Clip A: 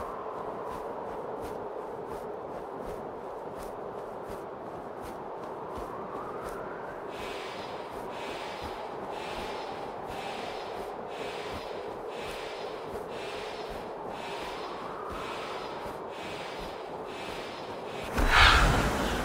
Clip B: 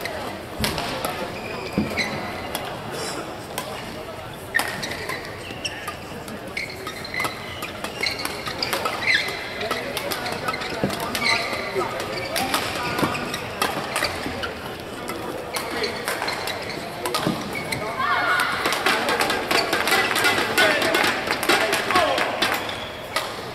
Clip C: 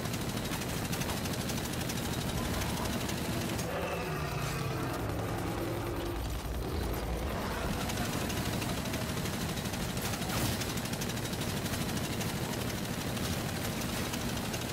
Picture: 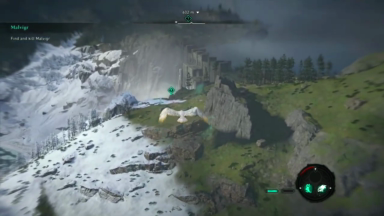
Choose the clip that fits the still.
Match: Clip A